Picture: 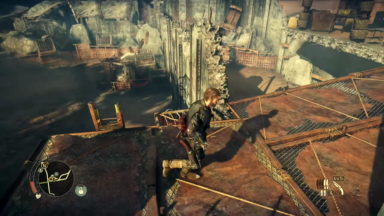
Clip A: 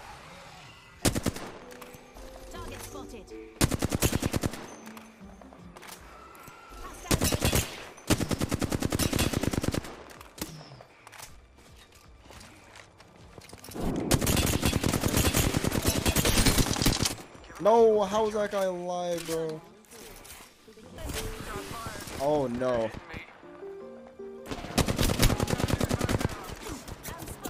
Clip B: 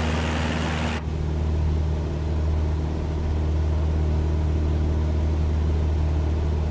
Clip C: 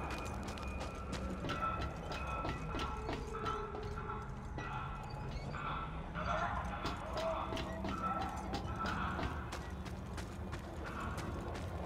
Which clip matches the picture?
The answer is C